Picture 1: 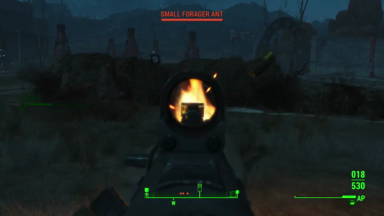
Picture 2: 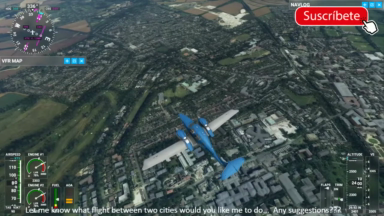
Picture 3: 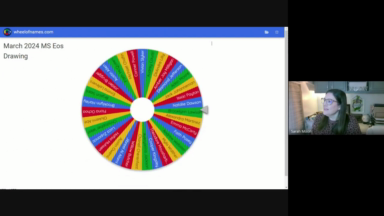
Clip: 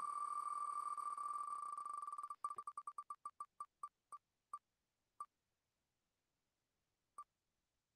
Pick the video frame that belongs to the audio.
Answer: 3